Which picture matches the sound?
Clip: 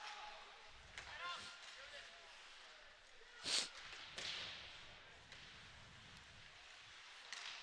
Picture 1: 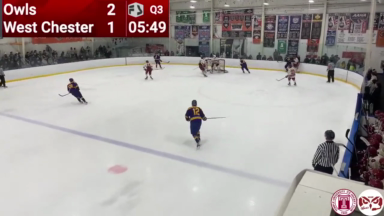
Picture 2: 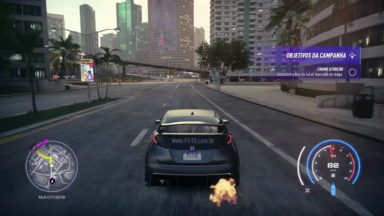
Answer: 1